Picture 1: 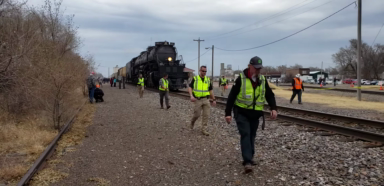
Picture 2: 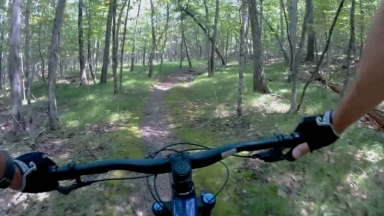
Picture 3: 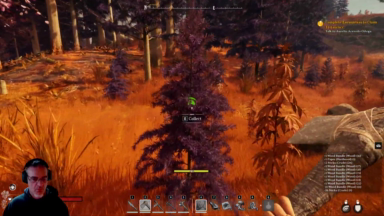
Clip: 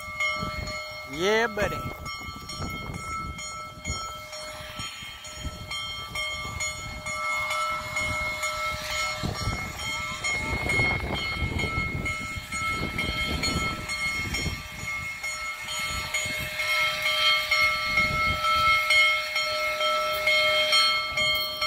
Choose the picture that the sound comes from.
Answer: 1